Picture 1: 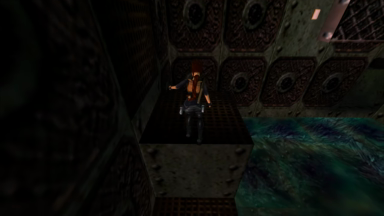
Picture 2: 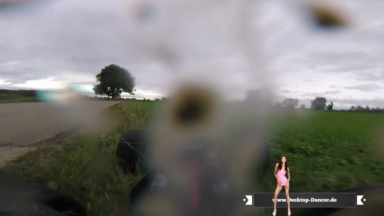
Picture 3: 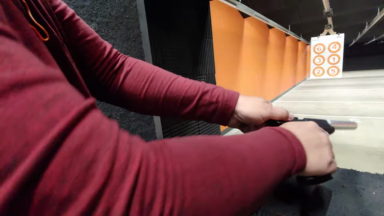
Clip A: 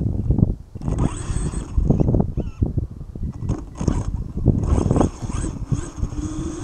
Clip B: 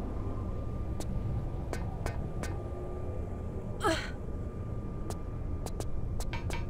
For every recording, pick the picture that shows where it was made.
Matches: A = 2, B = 1